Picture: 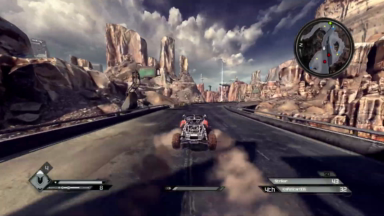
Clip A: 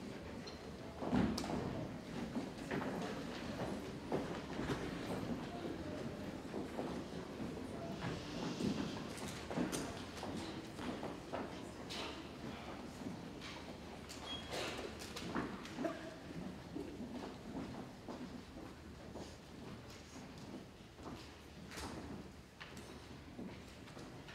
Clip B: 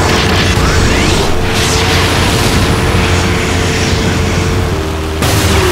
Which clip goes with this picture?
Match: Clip B